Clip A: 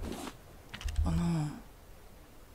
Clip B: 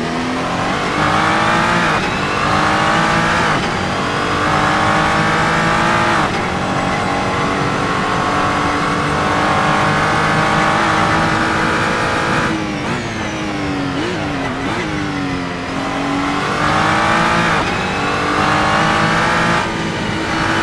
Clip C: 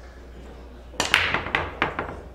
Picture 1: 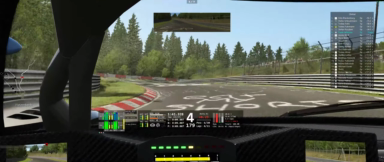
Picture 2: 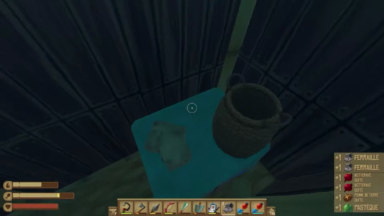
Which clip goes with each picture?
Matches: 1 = B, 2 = A